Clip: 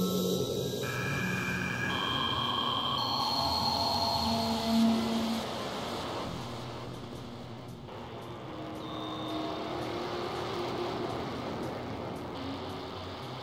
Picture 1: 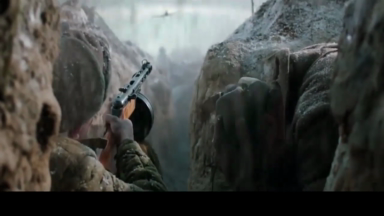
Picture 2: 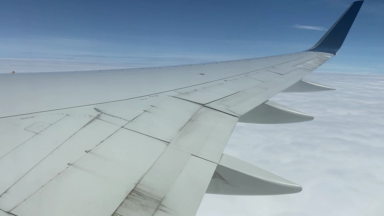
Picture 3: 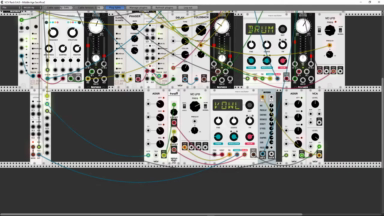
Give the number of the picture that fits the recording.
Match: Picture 3